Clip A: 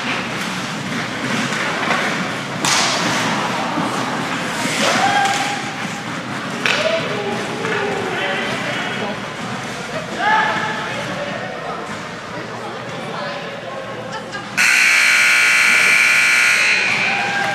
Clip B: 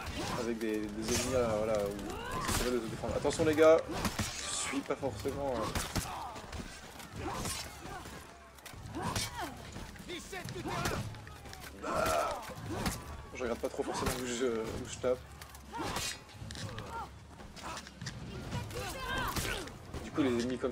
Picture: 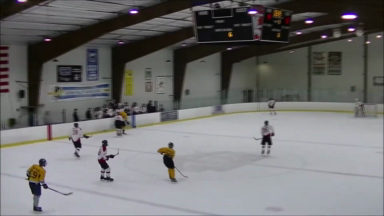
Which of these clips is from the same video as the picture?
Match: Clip A